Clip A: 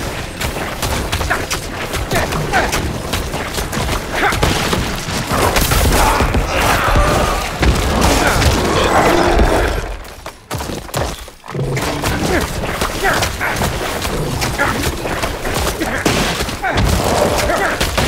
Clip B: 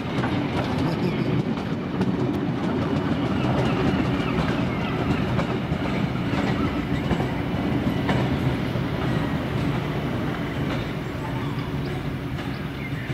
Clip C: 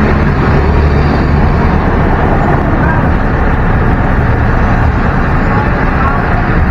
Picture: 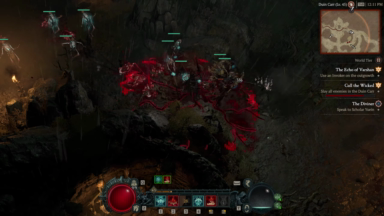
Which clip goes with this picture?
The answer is A